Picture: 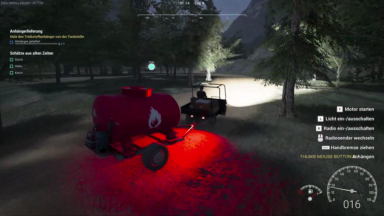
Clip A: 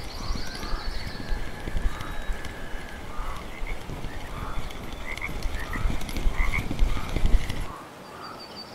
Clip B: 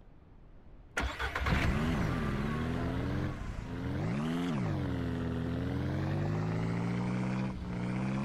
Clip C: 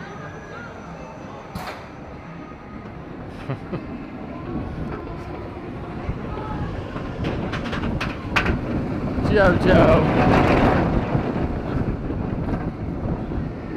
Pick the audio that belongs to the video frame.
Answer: B